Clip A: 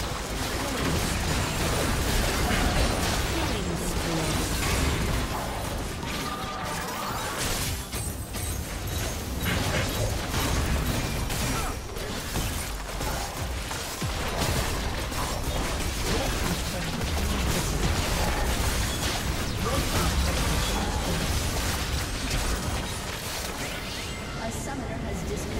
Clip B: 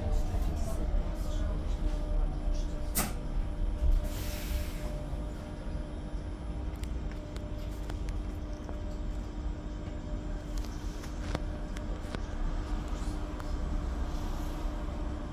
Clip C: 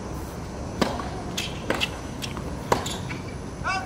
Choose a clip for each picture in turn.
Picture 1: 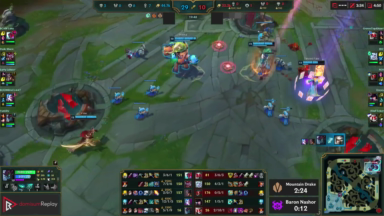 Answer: A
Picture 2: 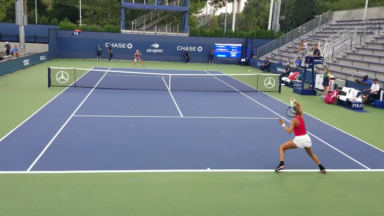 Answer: C